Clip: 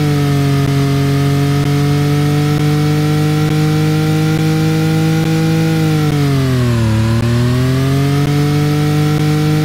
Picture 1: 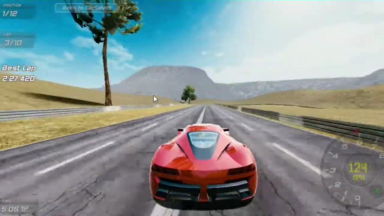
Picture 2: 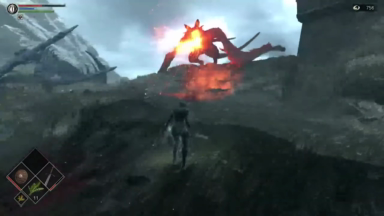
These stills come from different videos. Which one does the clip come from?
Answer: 1